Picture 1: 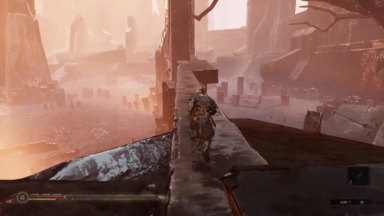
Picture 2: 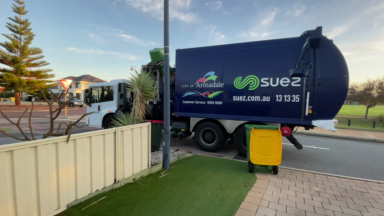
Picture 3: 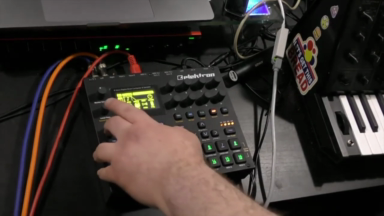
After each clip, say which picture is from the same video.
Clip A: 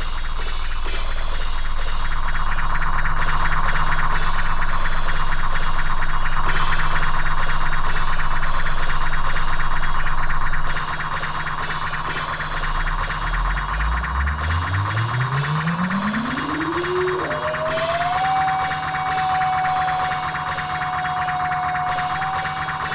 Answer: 3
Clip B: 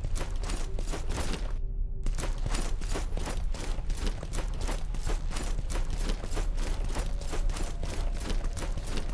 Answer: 1